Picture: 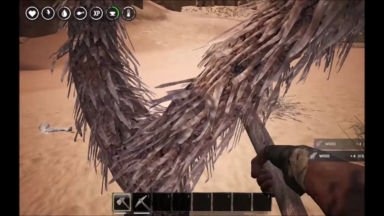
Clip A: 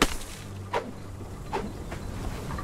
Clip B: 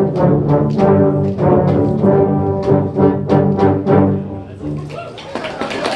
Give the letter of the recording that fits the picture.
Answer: A